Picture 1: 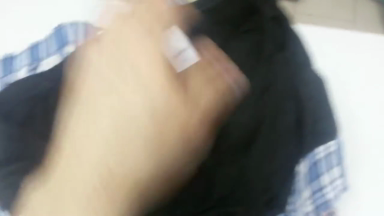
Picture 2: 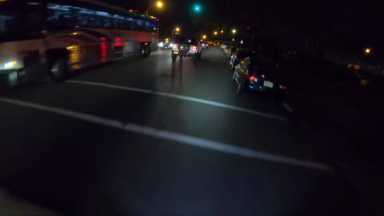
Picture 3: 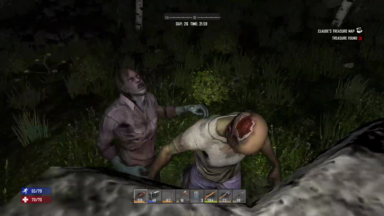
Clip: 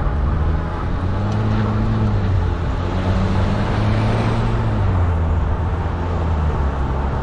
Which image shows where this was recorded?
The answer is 2